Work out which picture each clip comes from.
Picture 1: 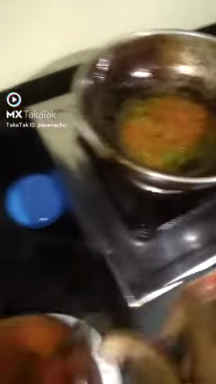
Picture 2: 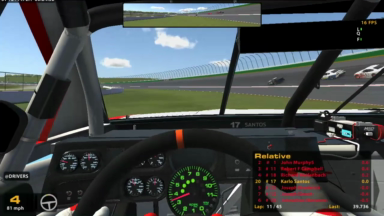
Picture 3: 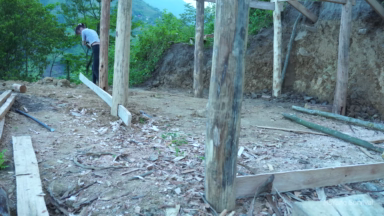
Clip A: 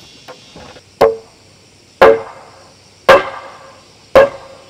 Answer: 3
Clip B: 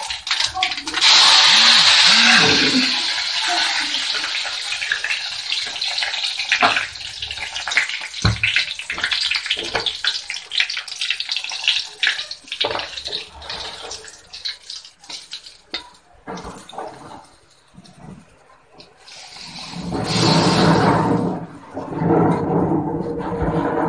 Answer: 1